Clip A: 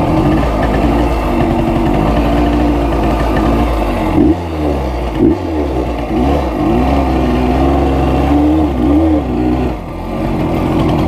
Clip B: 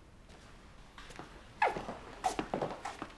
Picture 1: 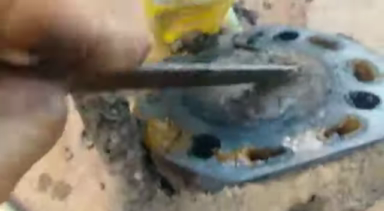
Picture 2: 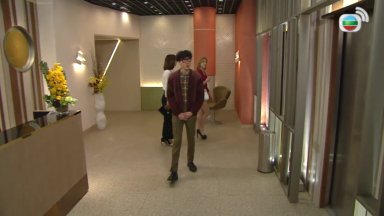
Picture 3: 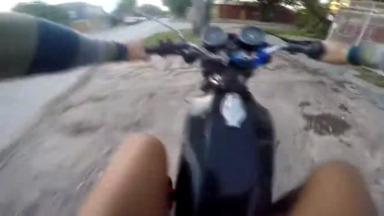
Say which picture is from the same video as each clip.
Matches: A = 3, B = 2